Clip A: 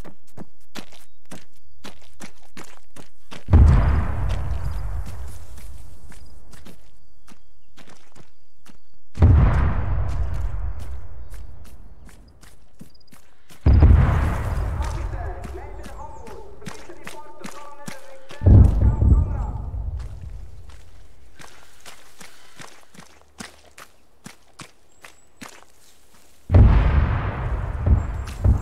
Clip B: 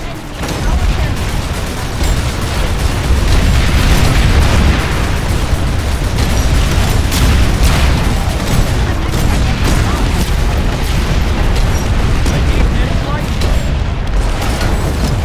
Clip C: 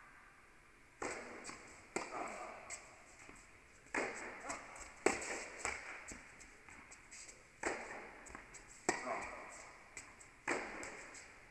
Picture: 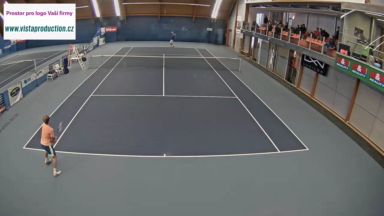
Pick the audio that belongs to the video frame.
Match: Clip C